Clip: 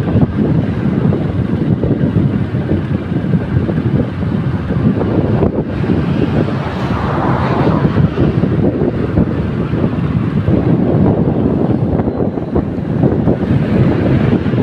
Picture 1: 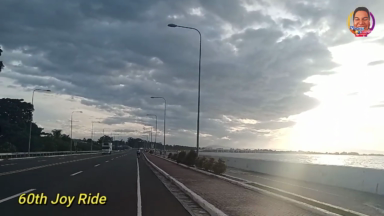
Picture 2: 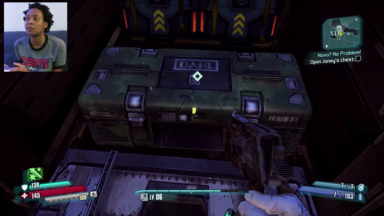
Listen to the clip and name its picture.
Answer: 1